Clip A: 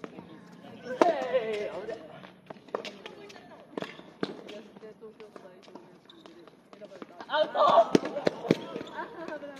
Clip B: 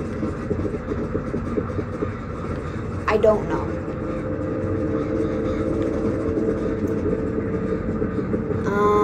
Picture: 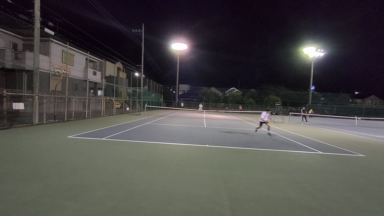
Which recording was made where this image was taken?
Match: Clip A